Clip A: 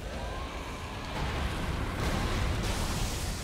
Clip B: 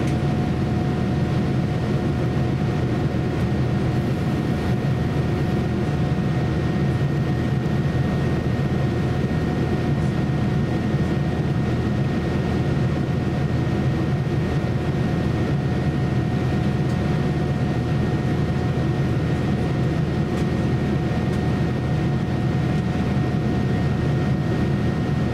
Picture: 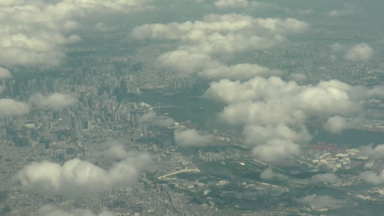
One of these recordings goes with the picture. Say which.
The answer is B